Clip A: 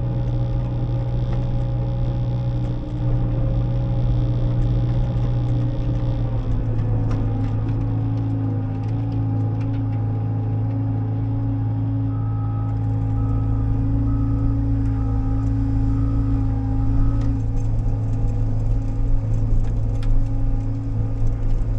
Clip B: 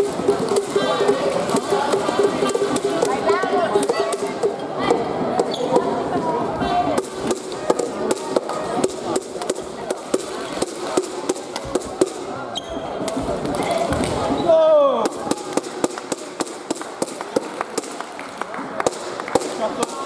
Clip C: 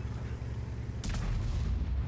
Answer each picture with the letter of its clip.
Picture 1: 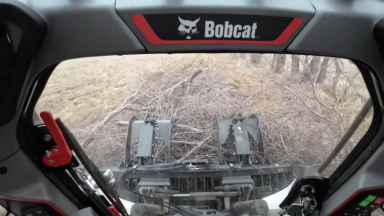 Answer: A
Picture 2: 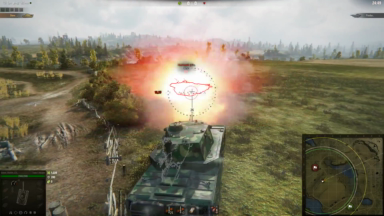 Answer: C